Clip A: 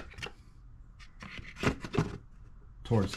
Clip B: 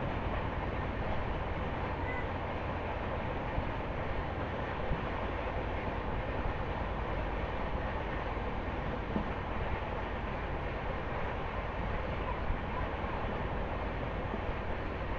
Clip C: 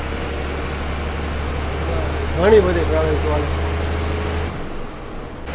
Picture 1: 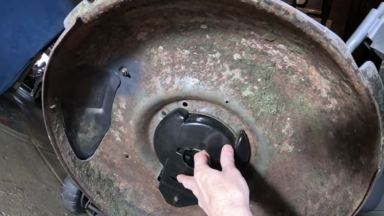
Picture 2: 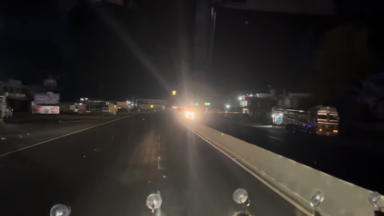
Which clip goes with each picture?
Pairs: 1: A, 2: C